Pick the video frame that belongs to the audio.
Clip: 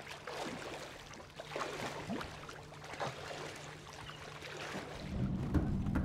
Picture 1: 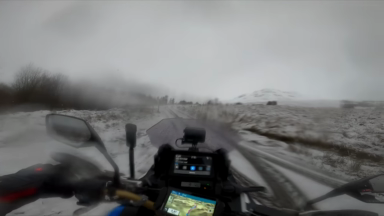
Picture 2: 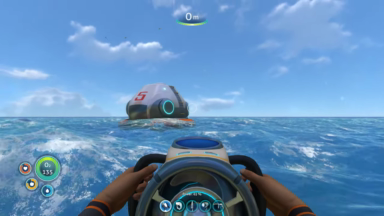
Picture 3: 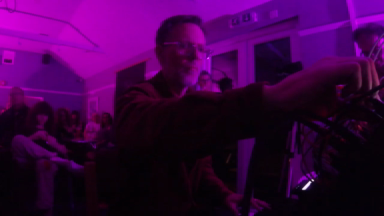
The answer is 2